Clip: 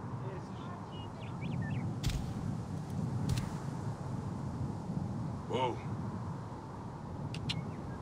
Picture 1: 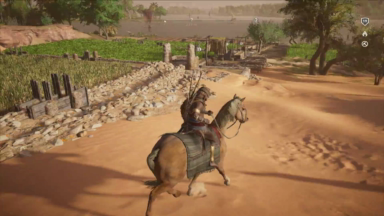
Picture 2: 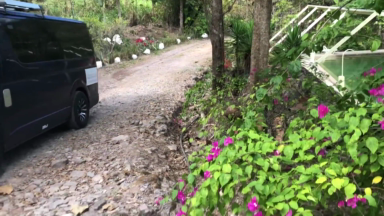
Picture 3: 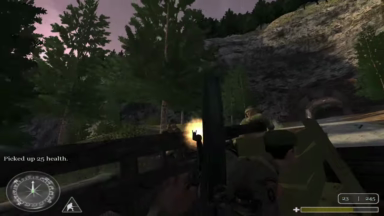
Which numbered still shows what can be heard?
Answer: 1